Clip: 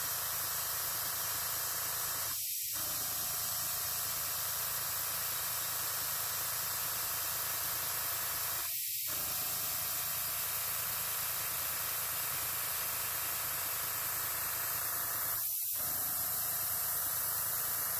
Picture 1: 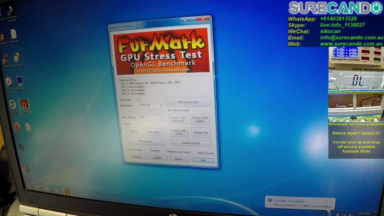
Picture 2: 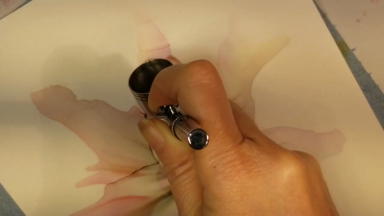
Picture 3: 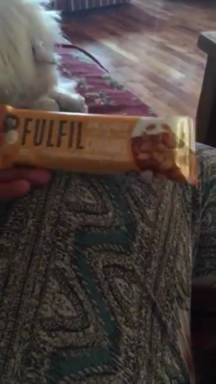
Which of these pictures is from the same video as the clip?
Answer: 2